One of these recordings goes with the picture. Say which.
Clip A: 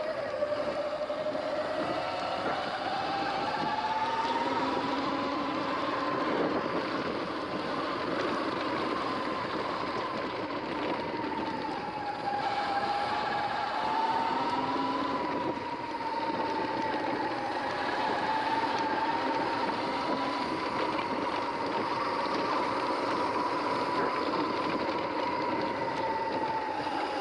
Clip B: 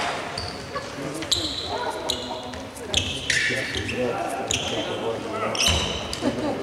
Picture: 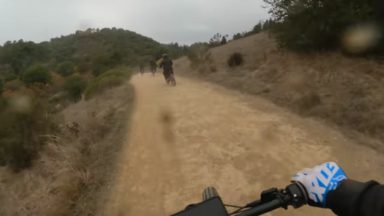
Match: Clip A